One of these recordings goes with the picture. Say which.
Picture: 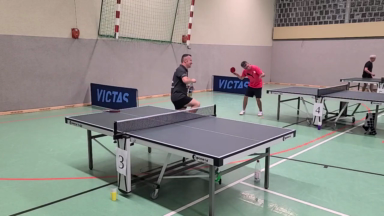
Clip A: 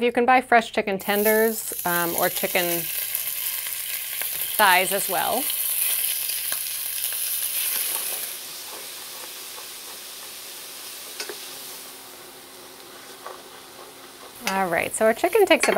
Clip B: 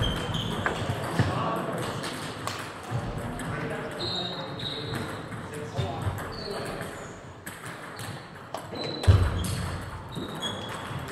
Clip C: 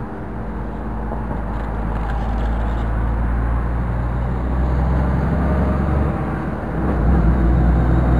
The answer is B